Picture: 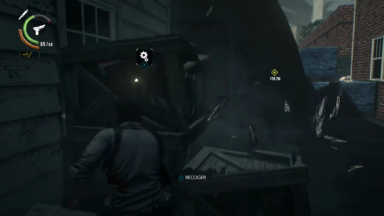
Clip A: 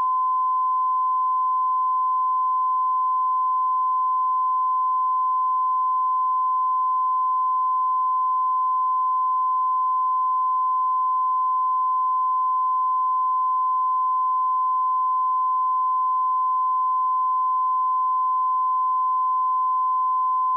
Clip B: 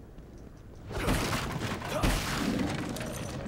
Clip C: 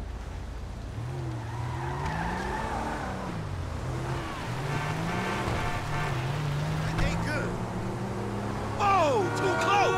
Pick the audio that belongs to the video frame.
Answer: B